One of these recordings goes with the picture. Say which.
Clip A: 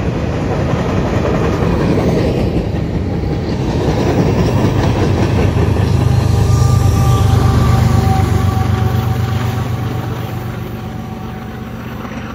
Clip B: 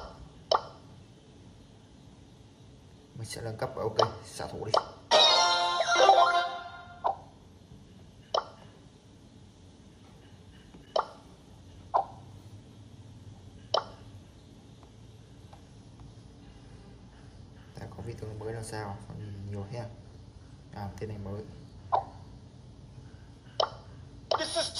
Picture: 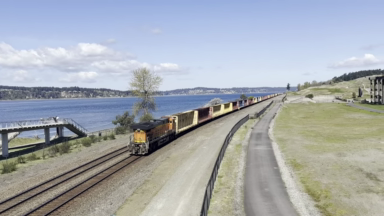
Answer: A